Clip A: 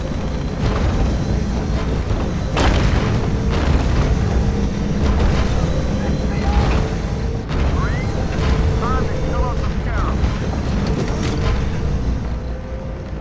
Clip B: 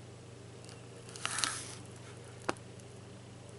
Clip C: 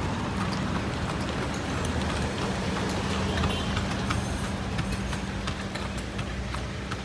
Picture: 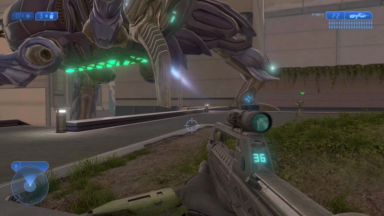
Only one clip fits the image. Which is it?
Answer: A